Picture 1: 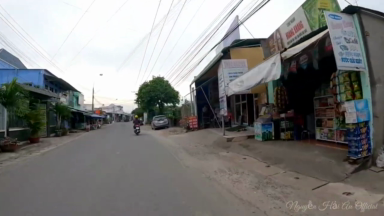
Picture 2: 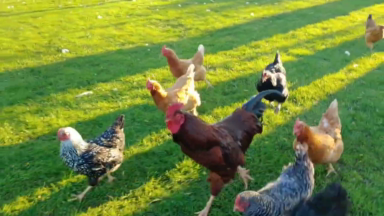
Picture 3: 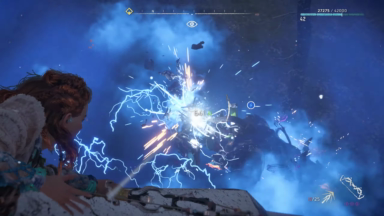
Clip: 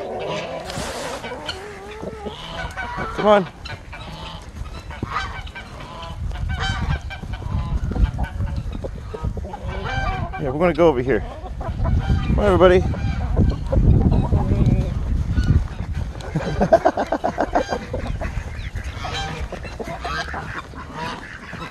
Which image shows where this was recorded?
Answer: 2